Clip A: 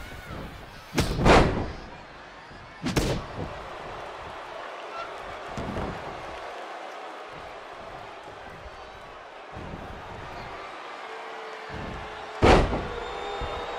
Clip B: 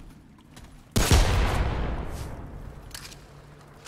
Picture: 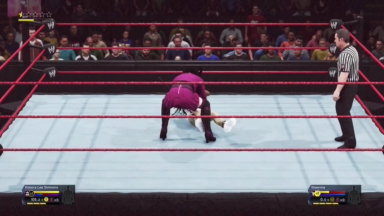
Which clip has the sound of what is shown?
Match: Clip A